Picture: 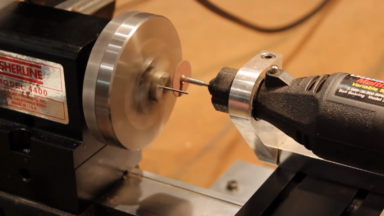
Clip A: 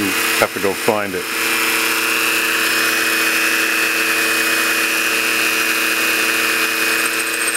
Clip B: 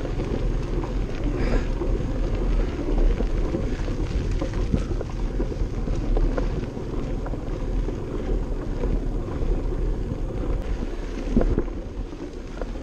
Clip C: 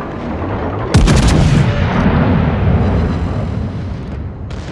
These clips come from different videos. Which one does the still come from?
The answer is A